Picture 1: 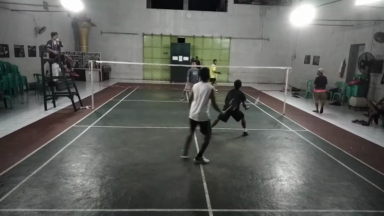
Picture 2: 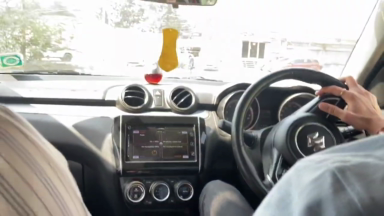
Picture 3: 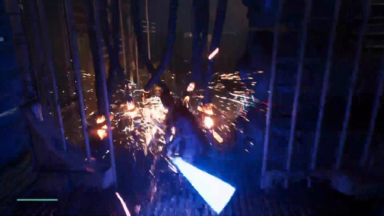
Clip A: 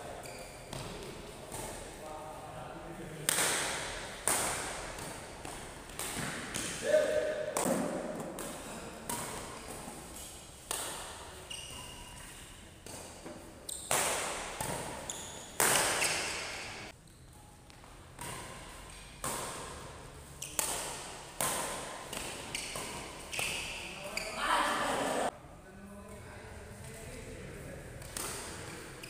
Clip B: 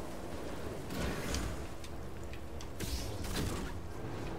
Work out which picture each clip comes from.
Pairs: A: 1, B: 3